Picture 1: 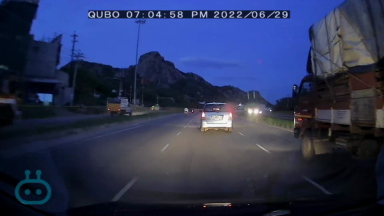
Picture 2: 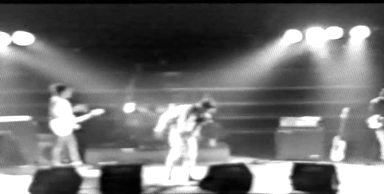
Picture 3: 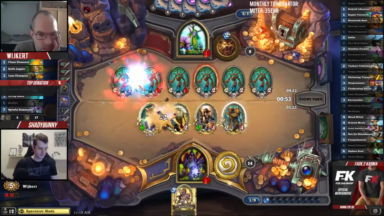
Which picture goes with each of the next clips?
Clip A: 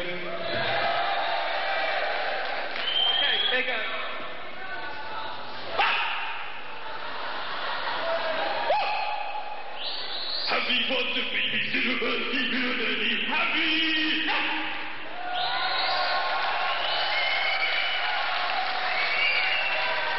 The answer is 2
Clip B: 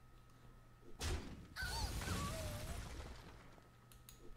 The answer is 3